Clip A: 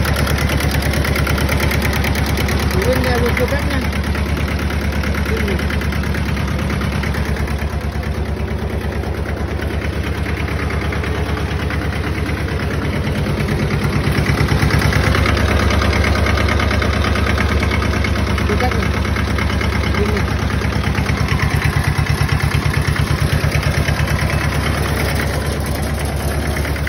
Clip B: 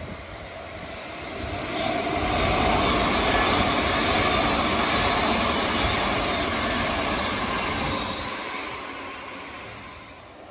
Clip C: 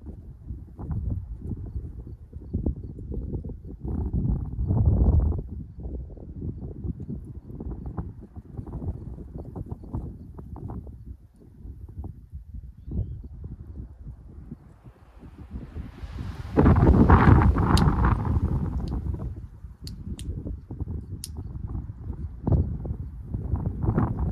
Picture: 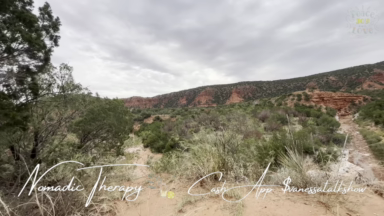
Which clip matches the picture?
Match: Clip C